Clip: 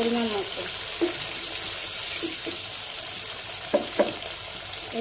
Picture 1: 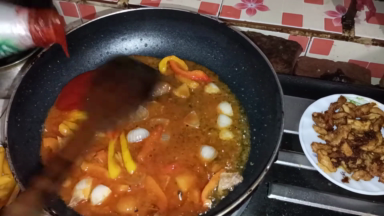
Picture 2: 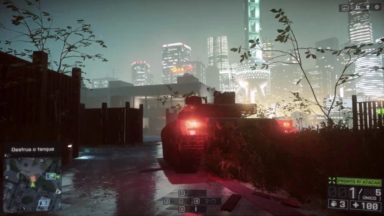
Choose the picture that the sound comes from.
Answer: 1